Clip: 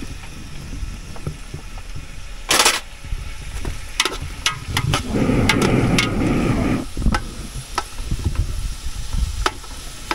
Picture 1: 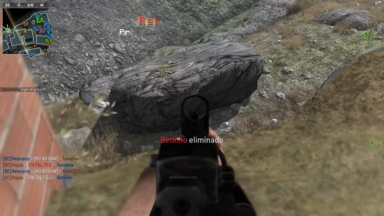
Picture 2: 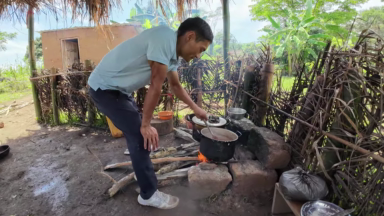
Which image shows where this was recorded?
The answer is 2